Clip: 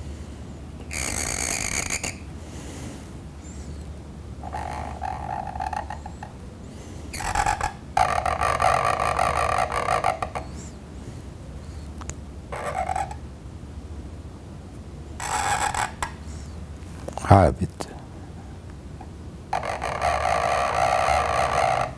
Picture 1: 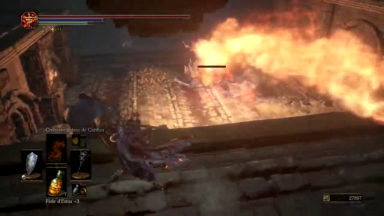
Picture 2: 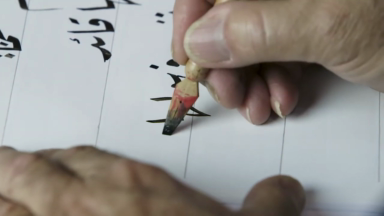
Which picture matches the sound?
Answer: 2